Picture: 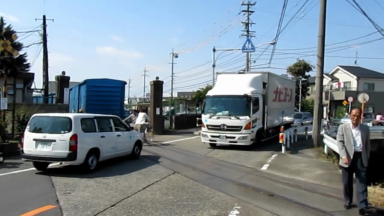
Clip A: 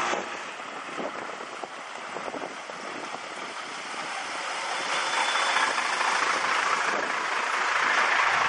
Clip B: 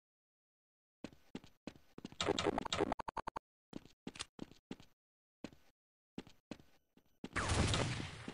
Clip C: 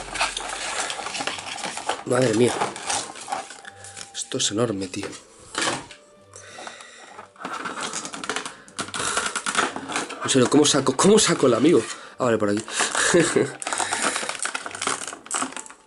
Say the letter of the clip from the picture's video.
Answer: A